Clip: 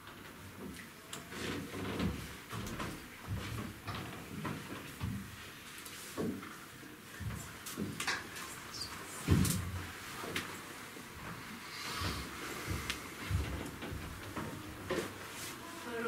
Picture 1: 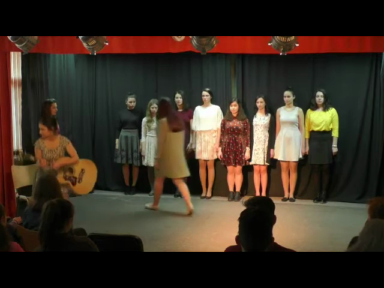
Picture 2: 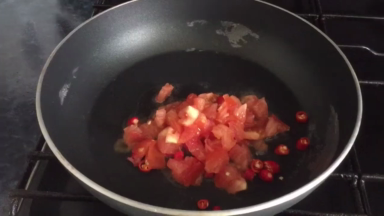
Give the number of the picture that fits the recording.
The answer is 1